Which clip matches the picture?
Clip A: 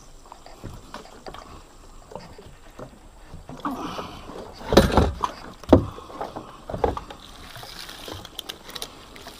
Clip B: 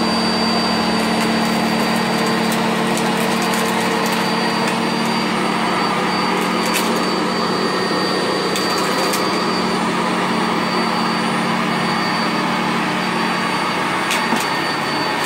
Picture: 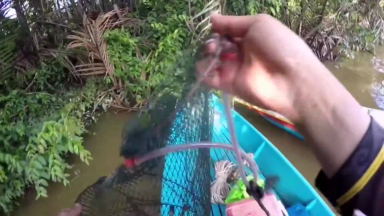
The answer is A